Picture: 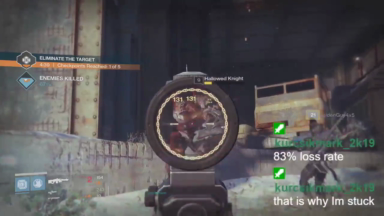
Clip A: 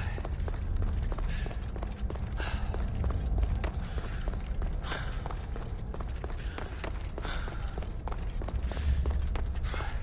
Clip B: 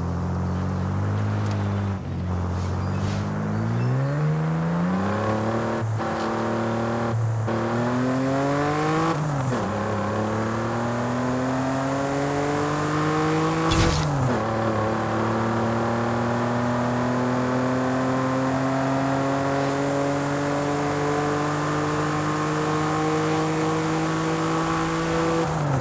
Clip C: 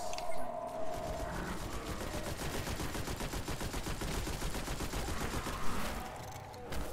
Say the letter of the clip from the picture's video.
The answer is C